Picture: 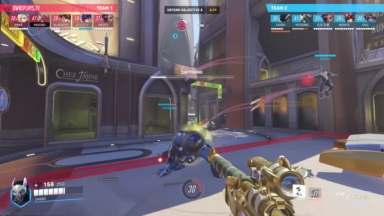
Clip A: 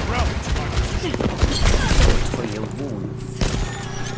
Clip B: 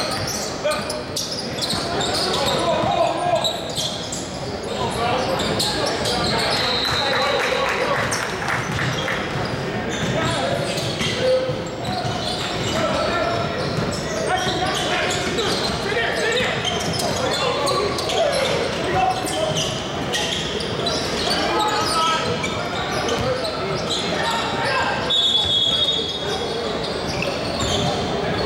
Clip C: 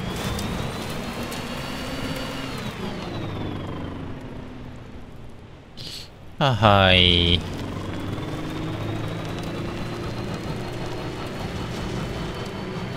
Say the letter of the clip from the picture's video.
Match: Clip A